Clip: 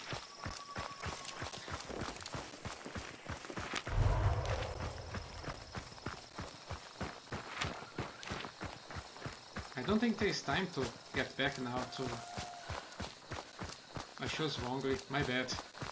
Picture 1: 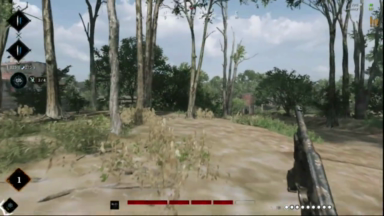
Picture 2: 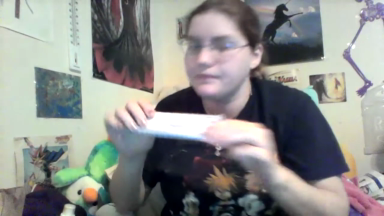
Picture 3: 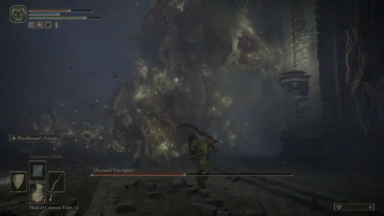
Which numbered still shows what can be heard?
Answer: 1